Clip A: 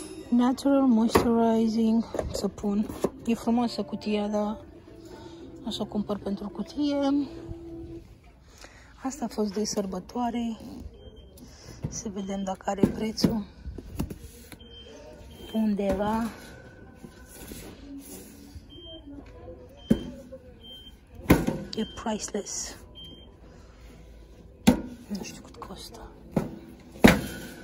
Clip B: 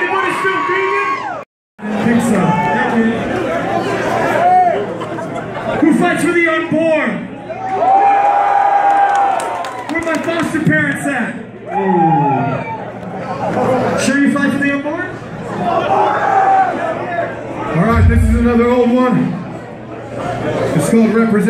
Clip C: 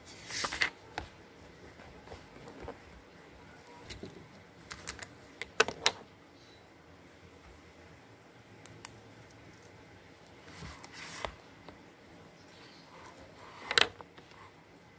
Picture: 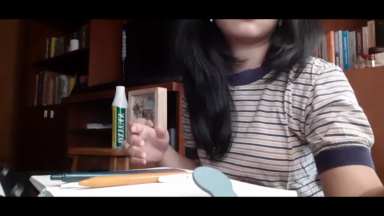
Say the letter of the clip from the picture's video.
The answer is C